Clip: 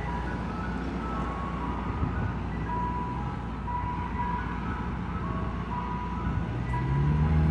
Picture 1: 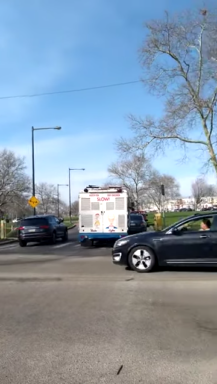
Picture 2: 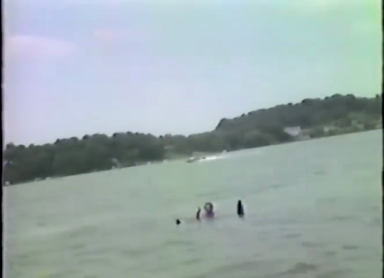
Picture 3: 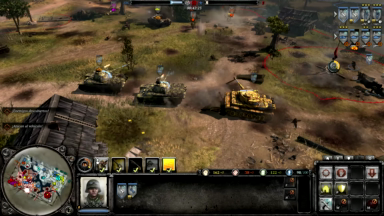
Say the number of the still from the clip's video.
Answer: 1